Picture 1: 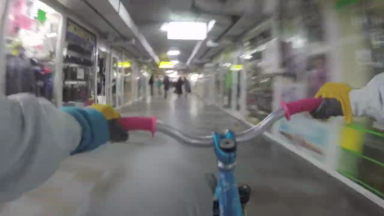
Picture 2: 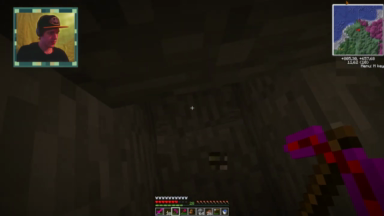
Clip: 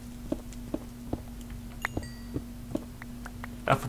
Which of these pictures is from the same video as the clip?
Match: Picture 2